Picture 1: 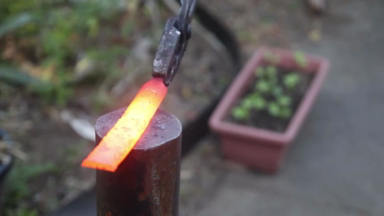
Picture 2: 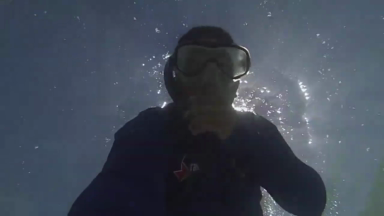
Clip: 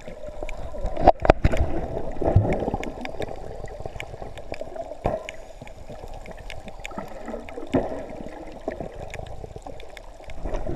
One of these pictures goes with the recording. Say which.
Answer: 2